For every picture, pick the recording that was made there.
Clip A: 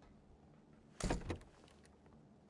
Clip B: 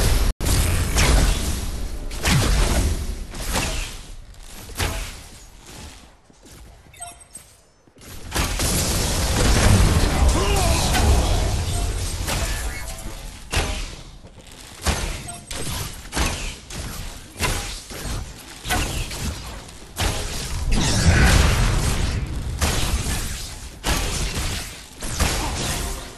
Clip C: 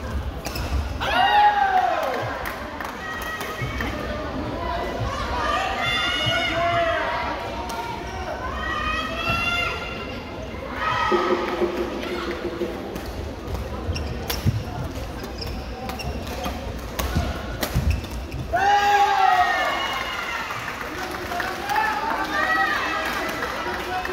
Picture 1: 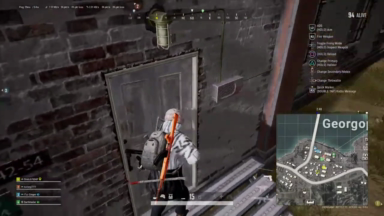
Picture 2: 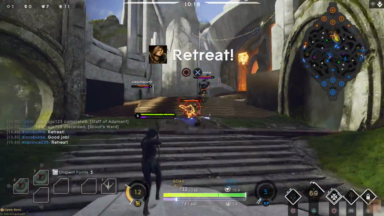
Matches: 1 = A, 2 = B